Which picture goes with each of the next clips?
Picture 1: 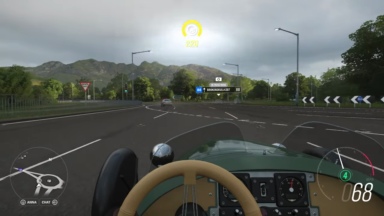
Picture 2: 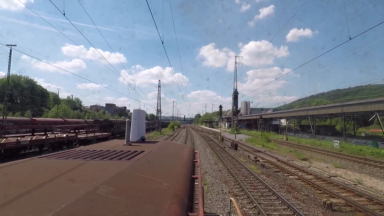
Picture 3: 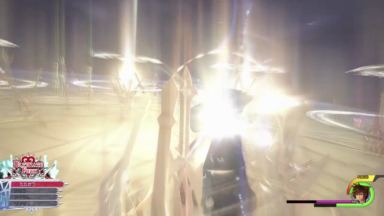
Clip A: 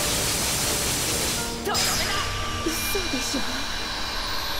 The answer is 3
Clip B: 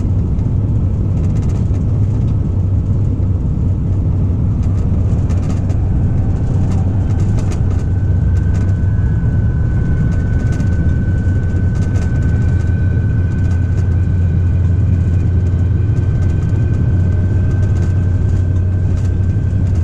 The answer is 2